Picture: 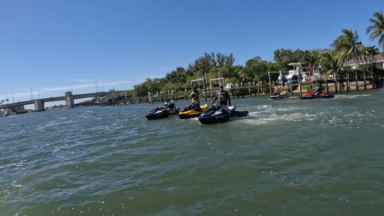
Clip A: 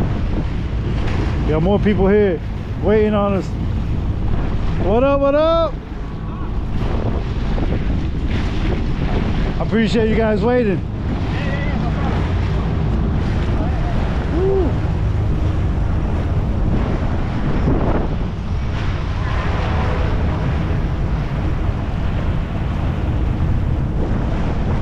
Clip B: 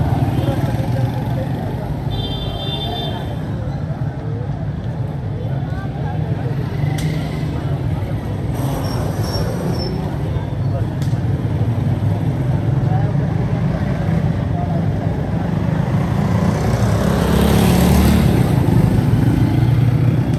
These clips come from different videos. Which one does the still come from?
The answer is A